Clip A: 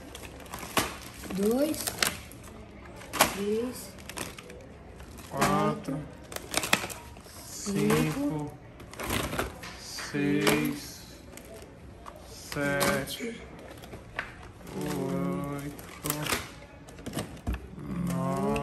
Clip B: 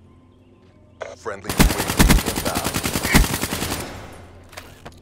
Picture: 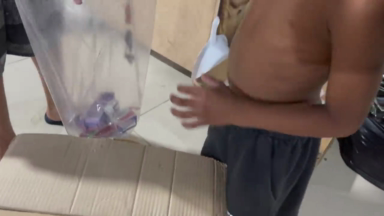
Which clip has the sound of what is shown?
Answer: A